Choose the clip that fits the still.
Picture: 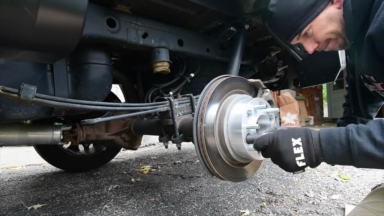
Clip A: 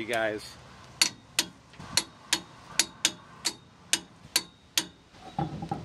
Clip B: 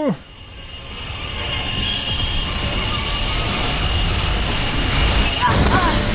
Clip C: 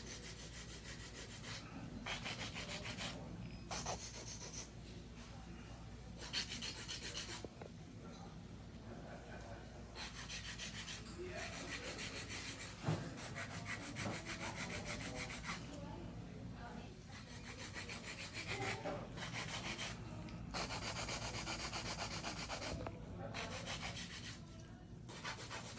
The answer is A